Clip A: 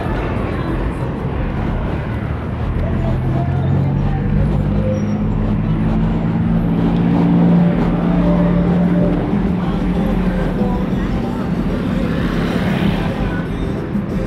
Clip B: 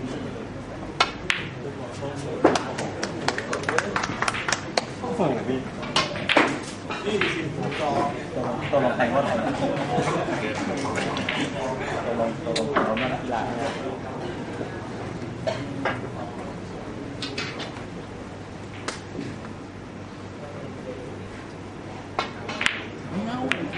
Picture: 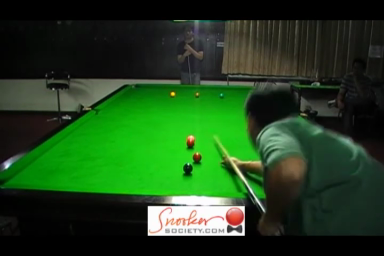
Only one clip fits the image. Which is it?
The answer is B